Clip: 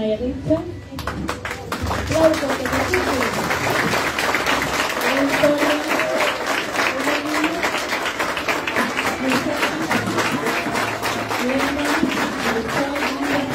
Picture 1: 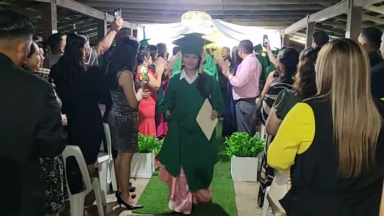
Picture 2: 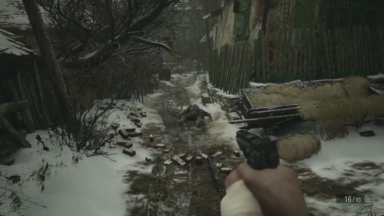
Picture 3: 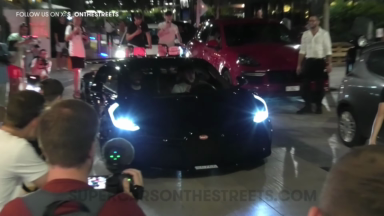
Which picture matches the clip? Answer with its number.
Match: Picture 1